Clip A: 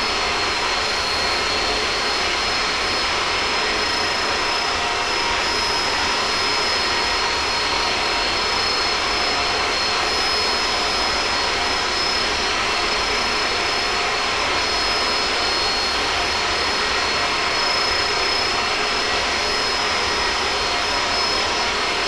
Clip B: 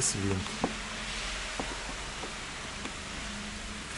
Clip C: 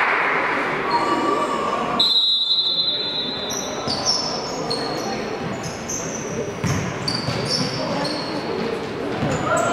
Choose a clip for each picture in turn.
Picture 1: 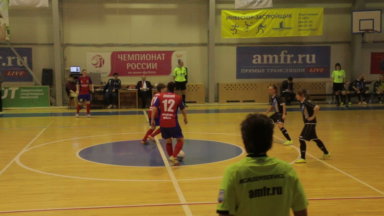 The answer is C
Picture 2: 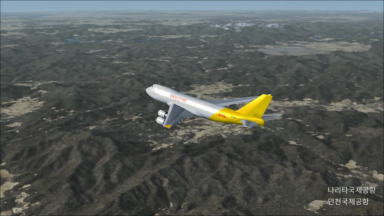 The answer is A